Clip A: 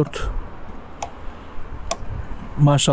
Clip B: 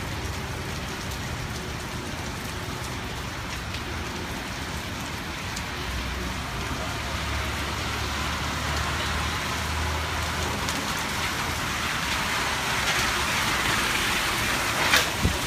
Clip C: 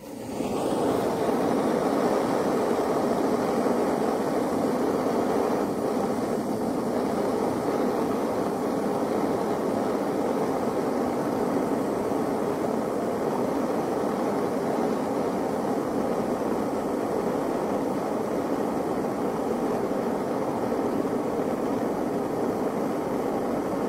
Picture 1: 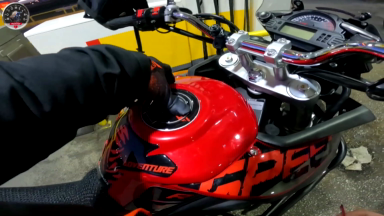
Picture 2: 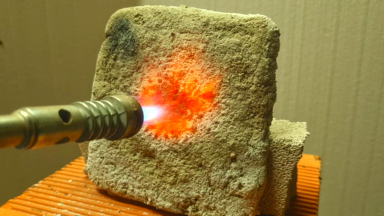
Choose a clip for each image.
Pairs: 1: A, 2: C